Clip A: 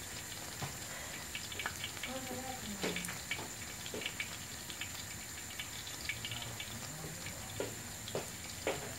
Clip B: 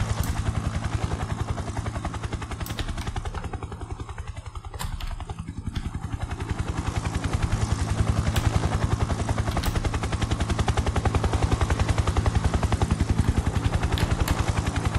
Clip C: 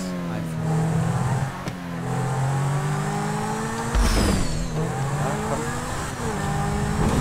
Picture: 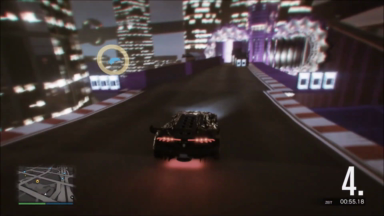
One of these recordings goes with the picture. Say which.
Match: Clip C